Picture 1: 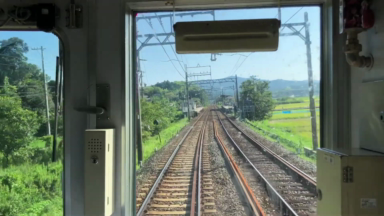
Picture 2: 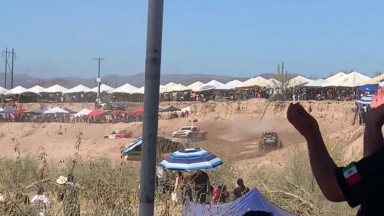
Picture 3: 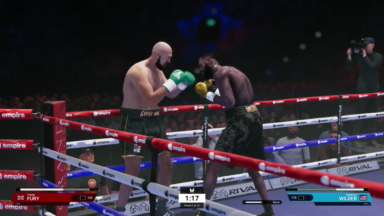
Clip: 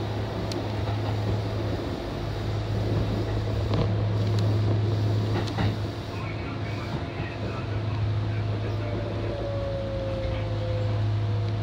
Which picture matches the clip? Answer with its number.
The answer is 1